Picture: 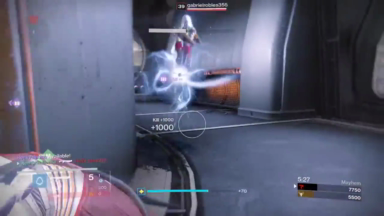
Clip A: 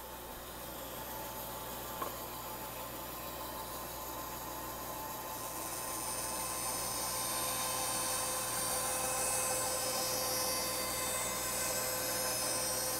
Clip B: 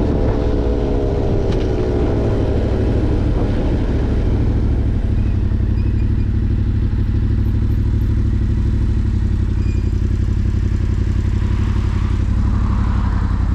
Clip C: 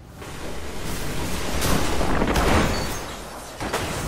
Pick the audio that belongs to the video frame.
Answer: C